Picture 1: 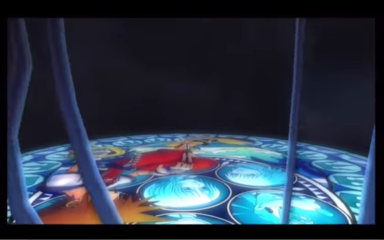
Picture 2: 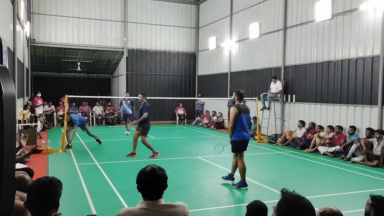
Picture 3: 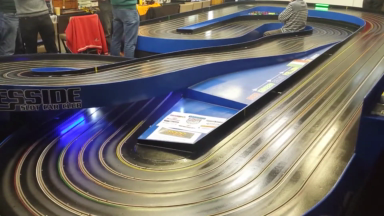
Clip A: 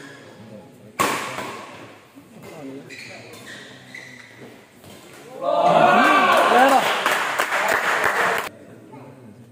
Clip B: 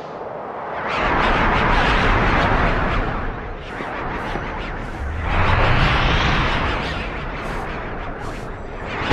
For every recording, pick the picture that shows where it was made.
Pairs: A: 2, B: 1